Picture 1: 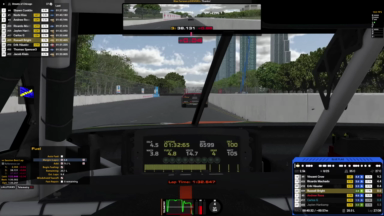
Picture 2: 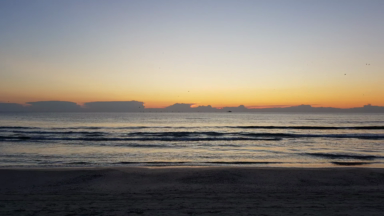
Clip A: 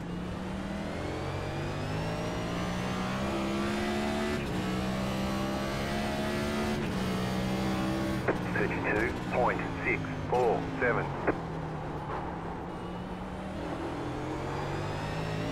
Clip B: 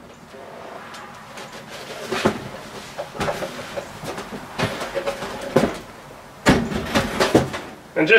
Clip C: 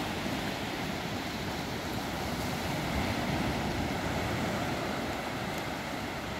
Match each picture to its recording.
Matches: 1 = A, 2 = C